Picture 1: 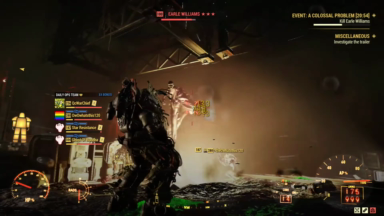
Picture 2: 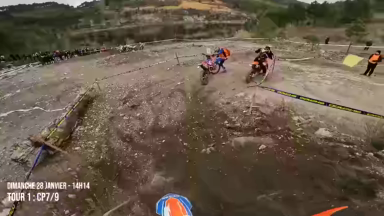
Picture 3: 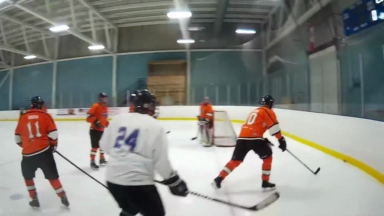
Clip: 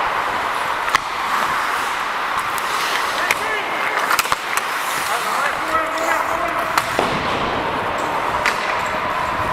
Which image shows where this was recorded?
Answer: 3